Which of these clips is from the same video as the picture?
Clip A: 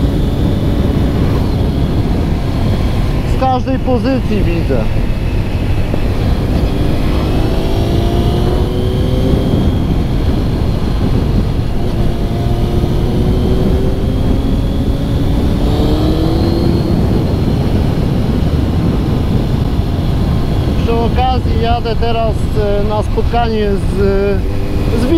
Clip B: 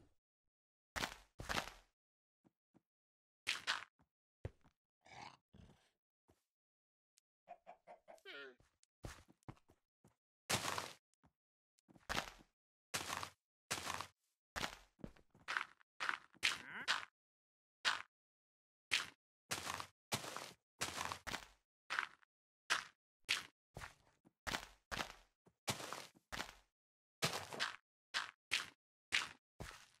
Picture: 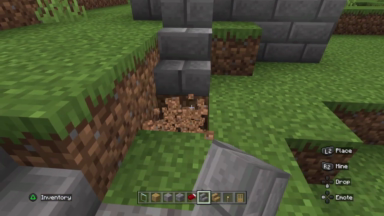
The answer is B